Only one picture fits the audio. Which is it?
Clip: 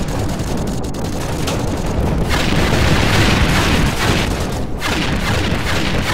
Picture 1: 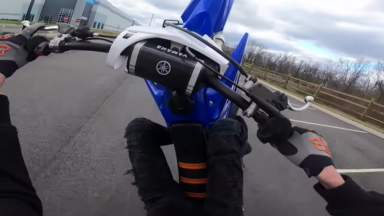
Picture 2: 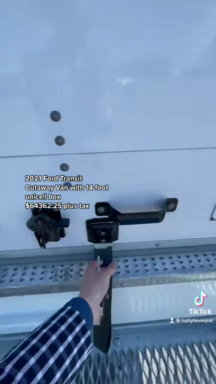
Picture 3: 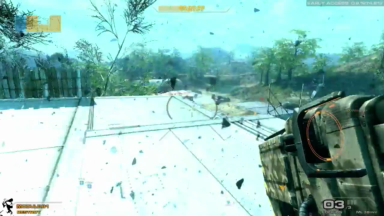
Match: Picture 3